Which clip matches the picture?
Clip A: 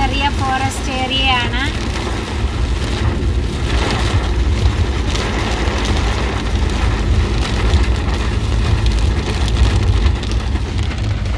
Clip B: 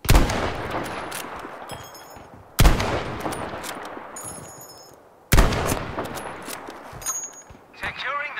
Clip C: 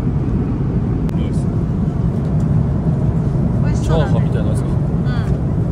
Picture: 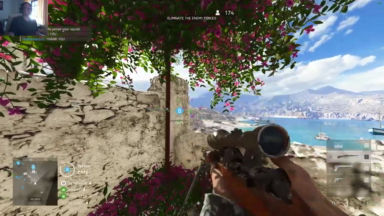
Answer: B